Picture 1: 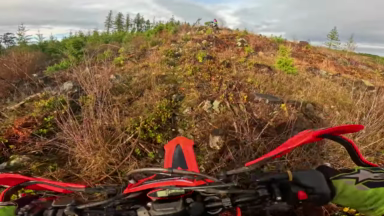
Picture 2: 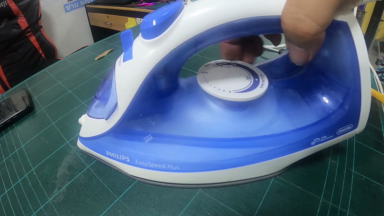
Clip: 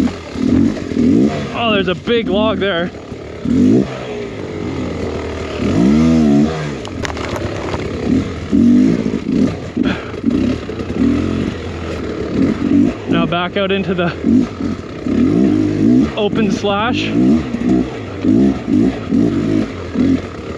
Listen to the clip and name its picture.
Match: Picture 1